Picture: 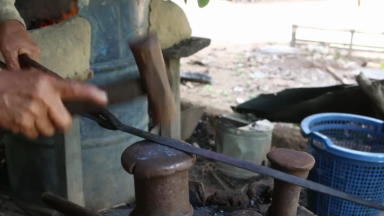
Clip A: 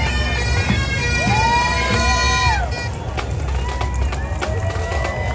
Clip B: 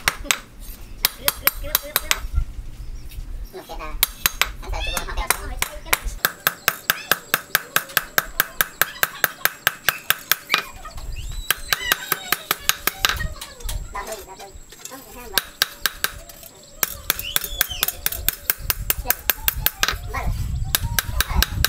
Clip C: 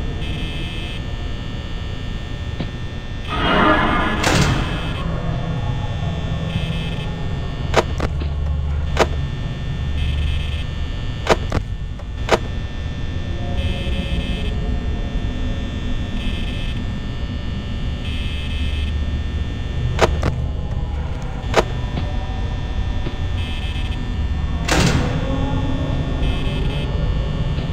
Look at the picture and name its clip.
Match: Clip B